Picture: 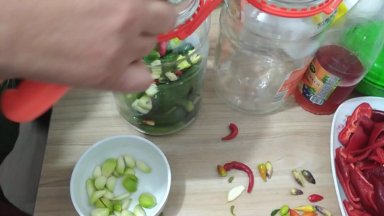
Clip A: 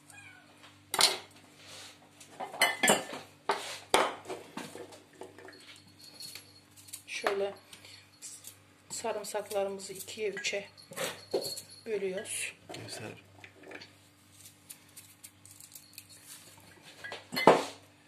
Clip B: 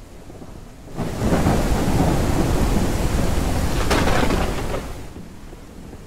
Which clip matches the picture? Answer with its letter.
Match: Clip A